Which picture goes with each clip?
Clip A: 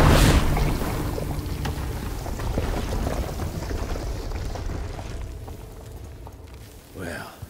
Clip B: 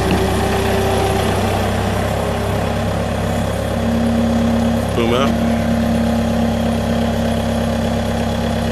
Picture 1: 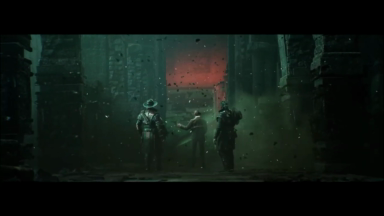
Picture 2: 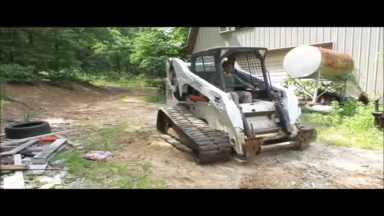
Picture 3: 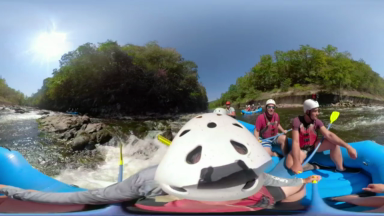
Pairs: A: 1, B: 2